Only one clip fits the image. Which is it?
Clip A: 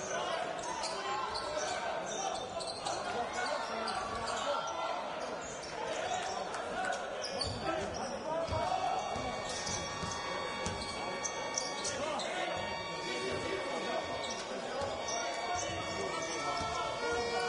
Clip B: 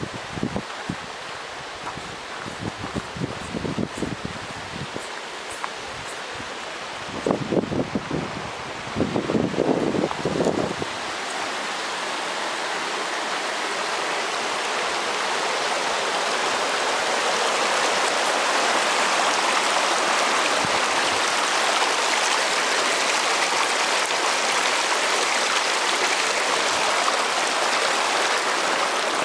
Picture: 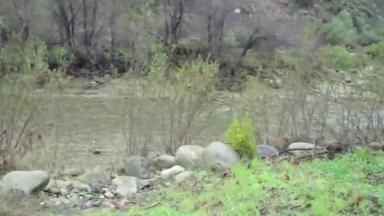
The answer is B